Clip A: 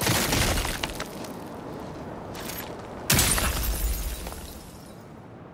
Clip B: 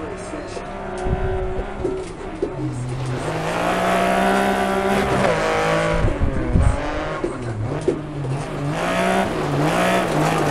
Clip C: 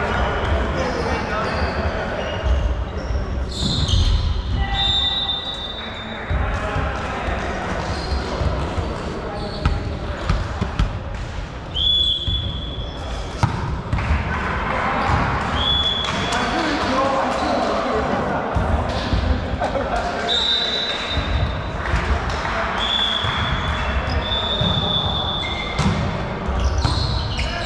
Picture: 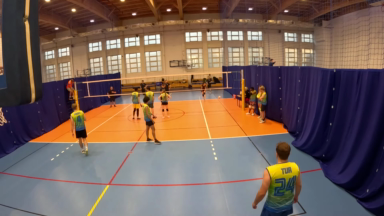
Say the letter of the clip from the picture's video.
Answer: C